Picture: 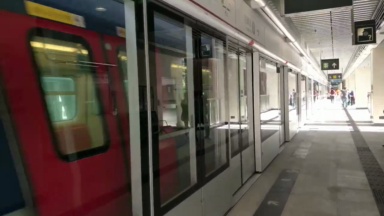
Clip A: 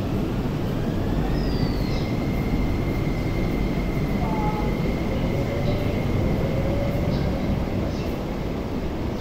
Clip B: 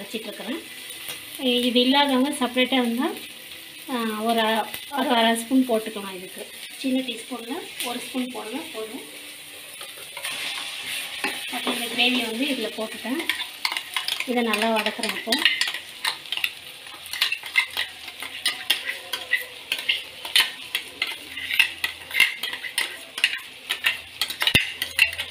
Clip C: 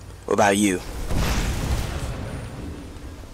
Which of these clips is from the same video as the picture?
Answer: A